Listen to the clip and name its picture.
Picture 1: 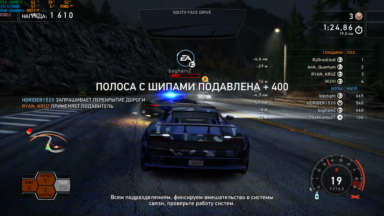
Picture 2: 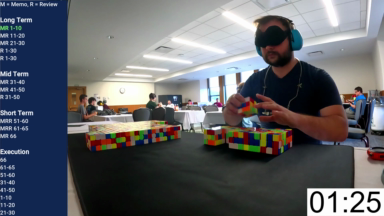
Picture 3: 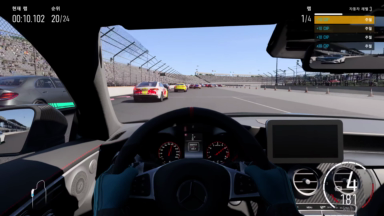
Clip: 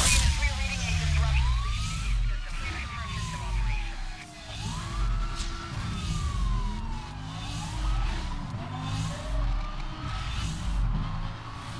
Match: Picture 1